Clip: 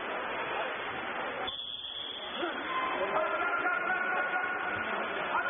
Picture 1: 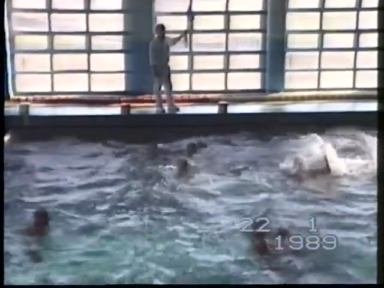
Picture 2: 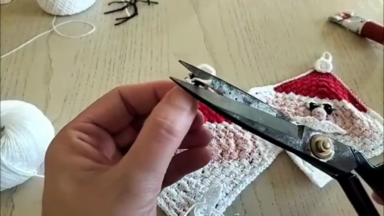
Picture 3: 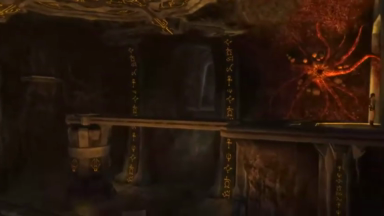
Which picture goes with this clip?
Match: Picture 1